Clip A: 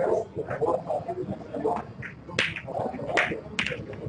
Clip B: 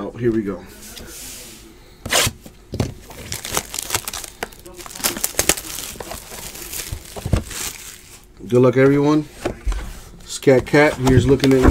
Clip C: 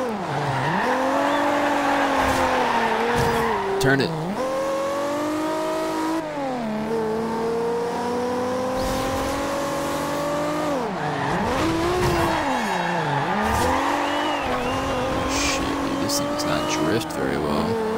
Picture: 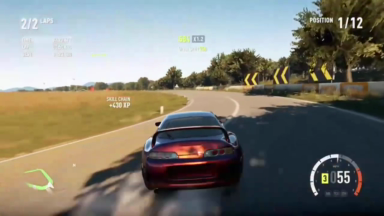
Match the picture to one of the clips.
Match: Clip C